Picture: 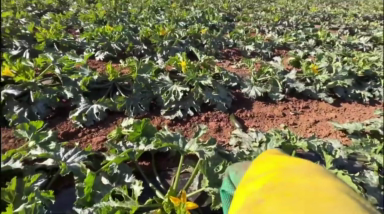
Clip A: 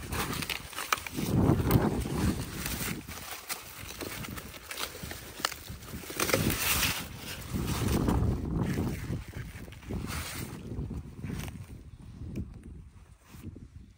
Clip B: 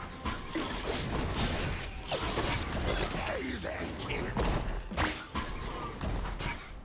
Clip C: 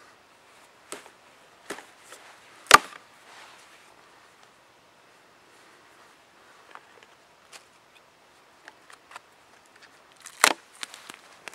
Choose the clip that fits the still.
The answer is A